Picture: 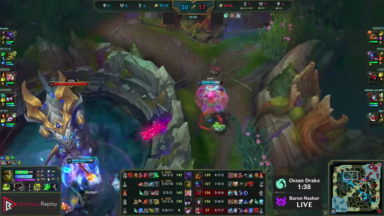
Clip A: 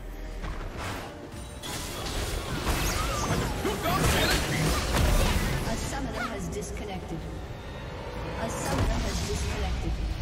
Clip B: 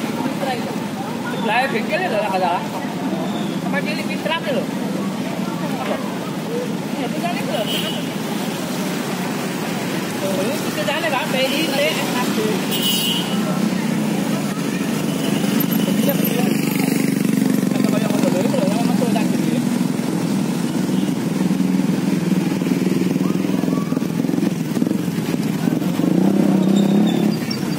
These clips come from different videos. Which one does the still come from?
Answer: A